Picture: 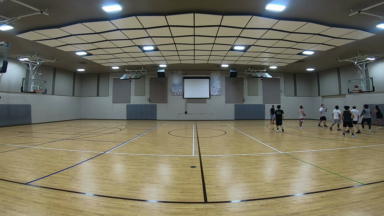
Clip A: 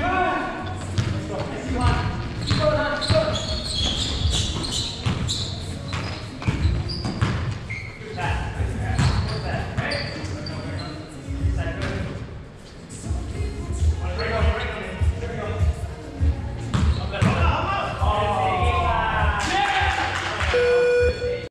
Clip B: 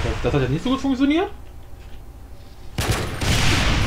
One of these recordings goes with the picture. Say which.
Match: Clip A